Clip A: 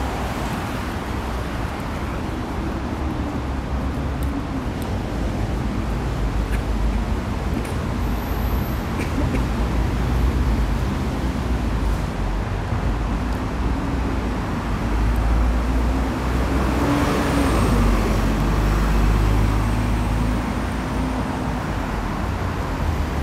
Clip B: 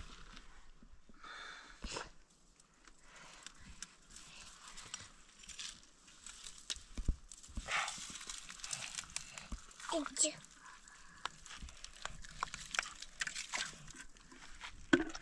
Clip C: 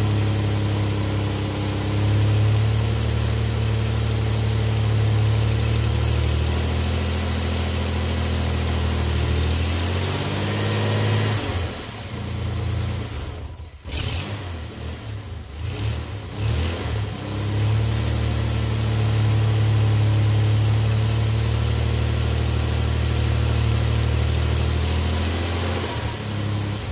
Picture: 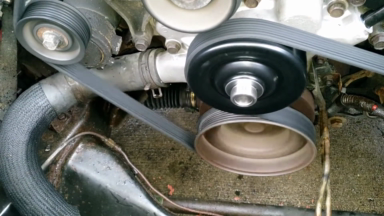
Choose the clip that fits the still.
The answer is C